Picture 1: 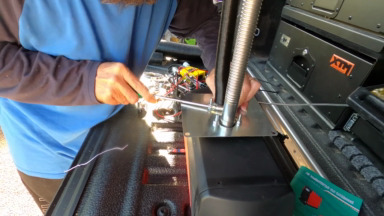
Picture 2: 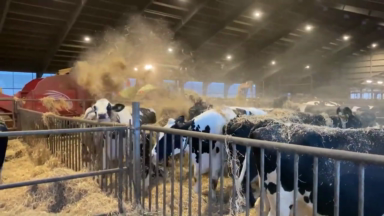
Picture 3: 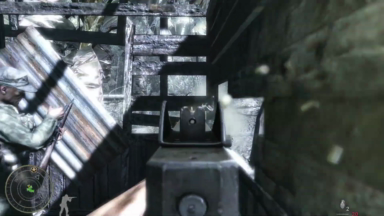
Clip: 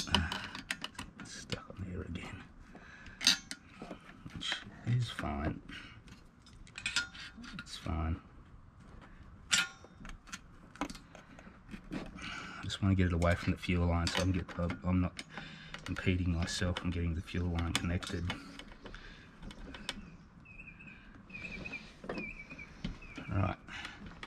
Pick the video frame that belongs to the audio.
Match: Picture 1